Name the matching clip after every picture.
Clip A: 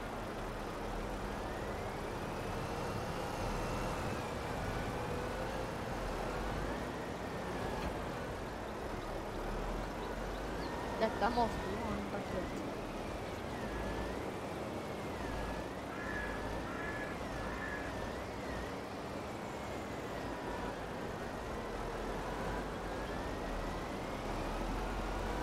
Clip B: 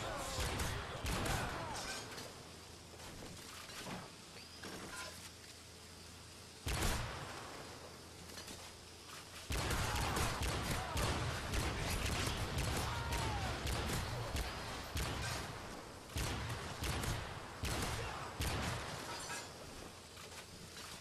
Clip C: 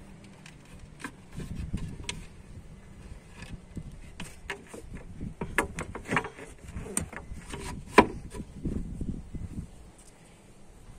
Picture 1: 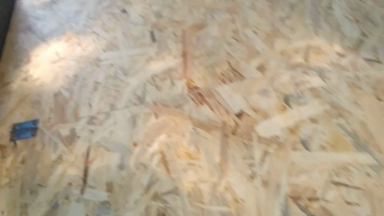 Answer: C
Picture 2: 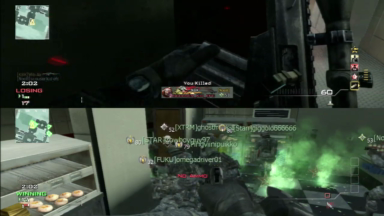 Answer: B